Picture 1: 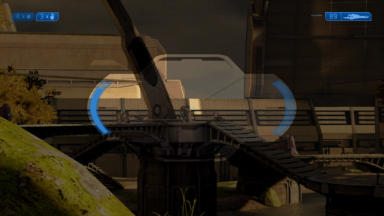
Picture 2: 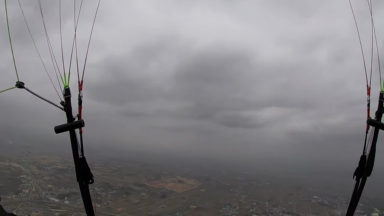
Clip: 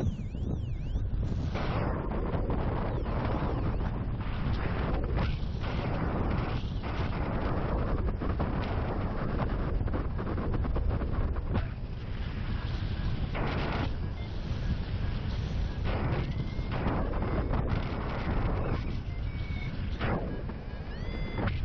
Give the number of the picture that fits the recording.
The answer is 2